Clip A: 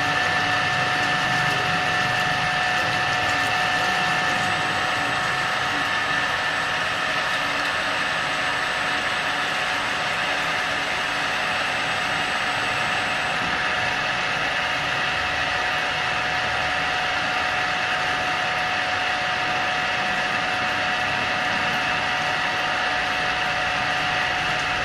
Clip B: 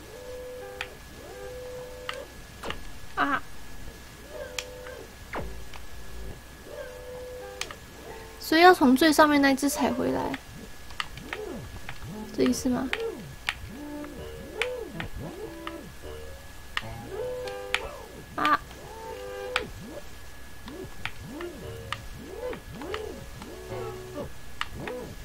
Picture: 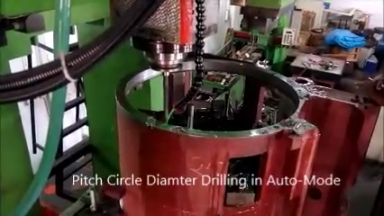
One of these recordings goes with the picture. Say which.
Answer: A